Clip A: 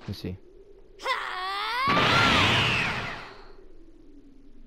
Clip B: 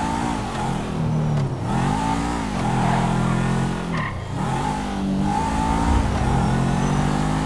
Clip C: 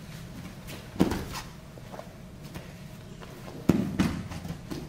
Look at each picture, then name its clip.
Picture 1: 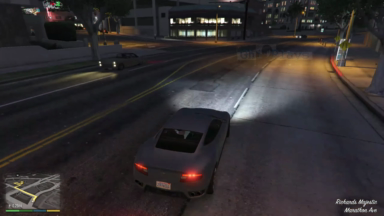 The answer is B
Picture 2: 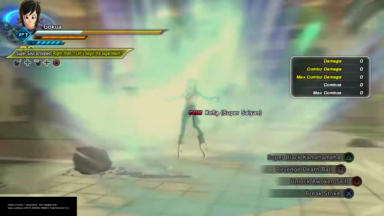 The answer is A